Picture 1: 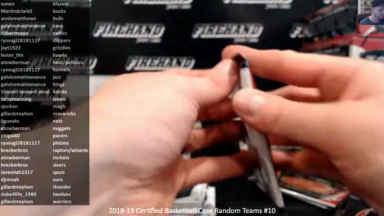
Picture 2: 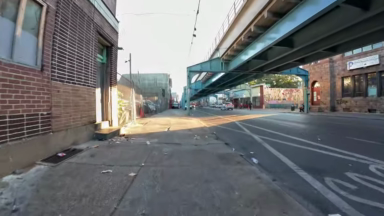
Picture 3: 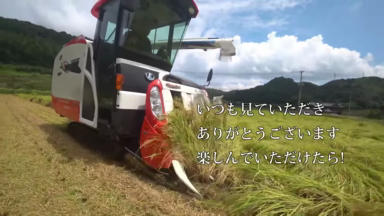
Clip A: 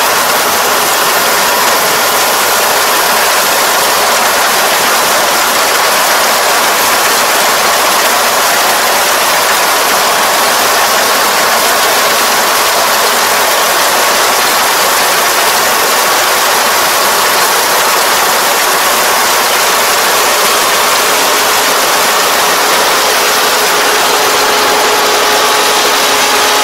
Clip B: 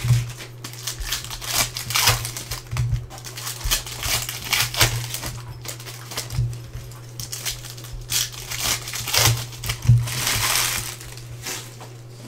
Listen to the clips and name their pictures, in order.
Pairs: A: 3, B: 1